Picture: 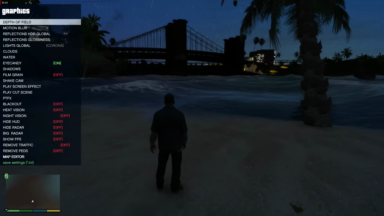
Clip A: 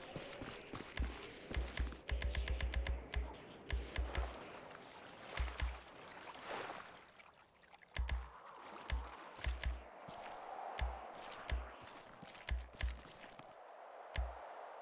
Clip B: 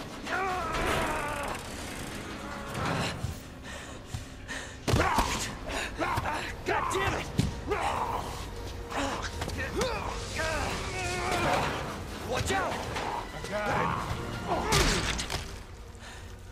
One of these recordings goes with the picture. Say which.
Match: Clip A